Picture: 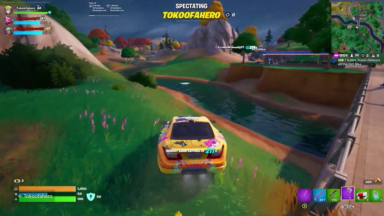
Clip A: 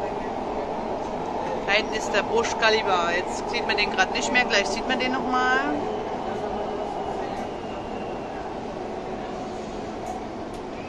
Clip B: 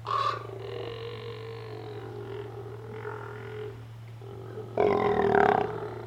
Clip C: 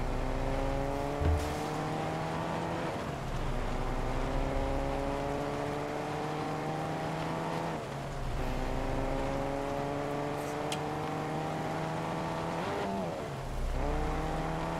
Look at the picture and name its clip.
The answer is C